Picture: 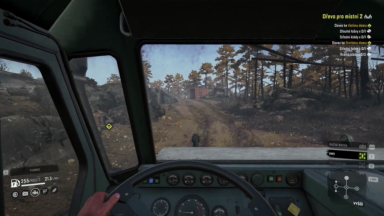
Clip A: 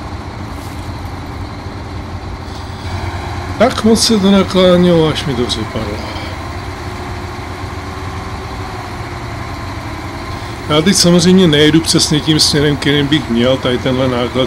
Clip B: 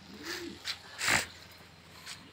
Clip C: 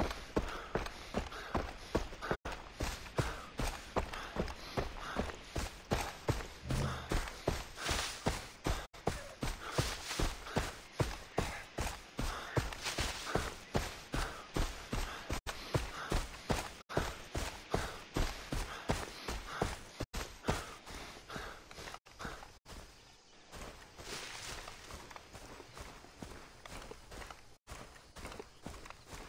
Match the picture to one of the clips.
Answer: A